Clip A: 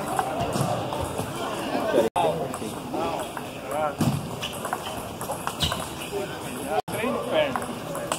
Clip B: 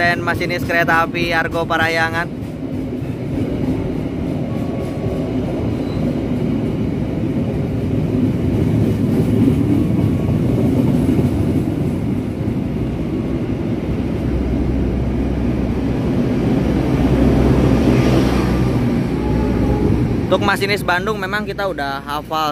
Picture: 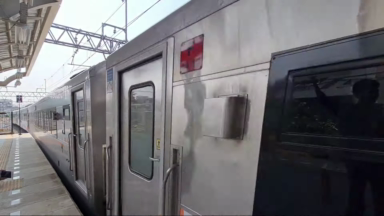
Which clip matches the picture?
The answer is B